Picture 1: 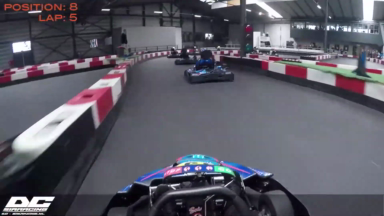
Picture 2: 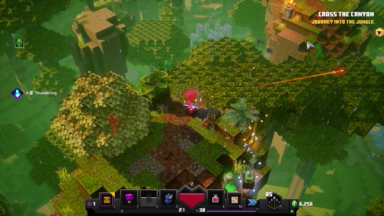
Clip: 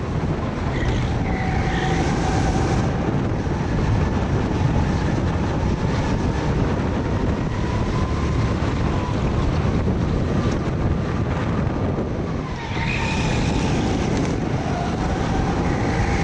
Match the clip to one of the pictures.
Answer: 1